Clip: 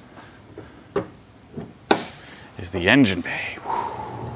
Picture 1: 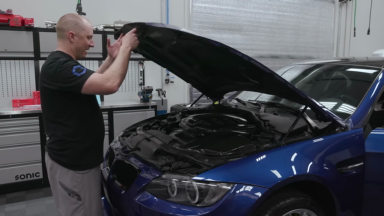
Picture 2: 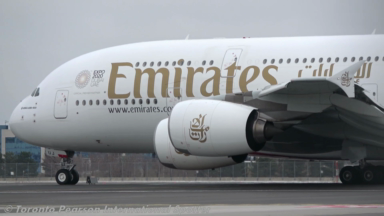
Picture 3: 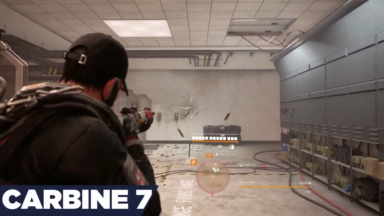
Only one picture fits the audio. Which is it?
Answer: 1